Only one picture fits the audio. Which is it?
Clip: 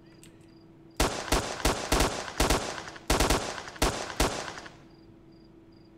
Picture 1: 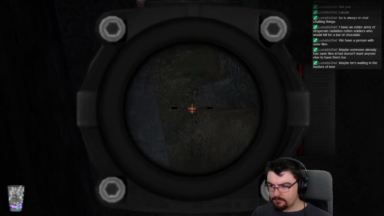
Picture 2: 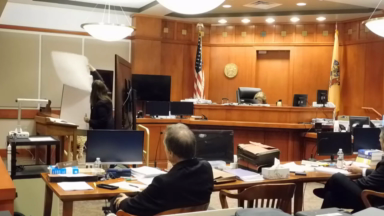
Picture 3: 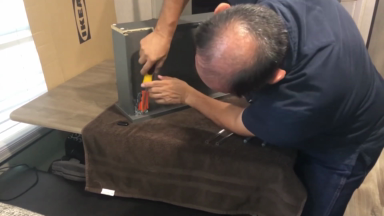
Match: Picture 1